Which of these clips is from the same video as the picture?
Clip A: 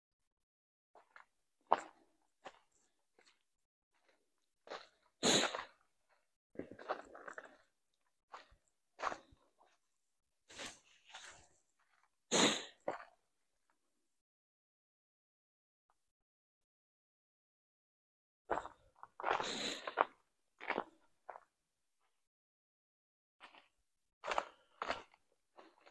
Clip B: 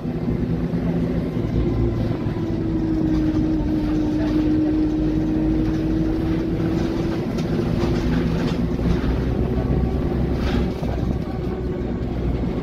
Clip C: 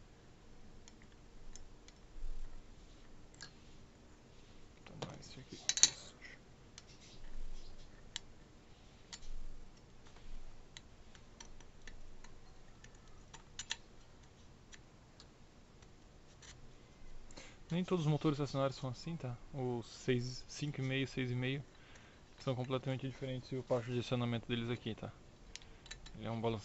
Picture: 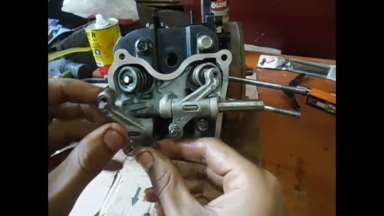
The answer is C